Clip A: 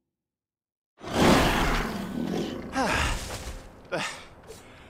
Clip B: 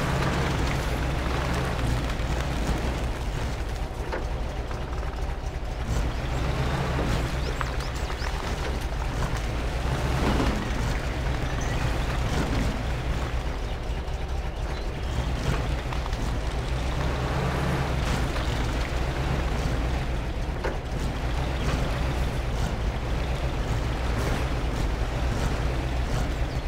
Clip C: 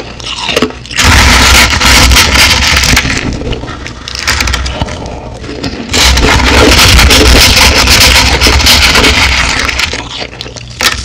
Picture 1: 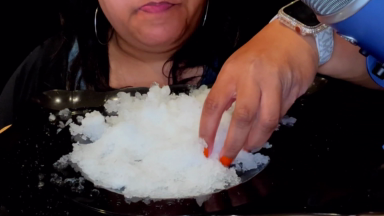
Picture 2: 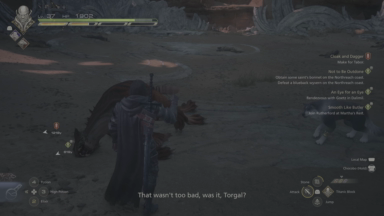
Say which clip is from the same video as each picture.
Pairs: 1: C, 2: A